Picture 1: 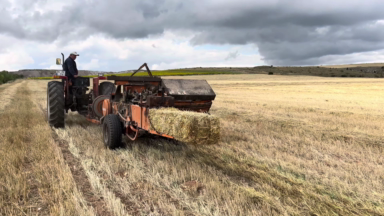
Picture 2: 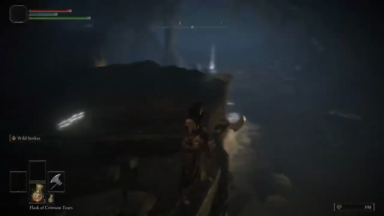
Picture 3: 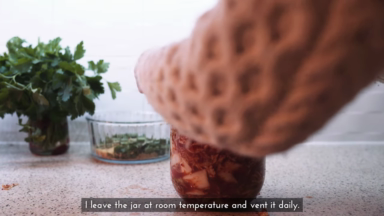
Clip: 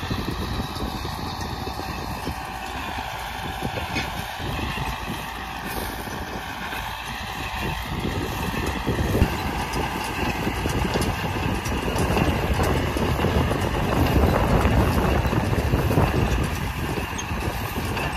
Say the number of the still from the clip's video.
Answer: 1